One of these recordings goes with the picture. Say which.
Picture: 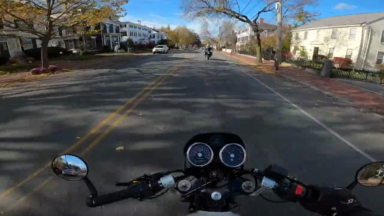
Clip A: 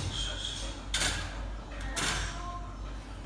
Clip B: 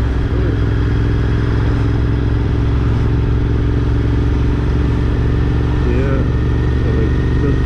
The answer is B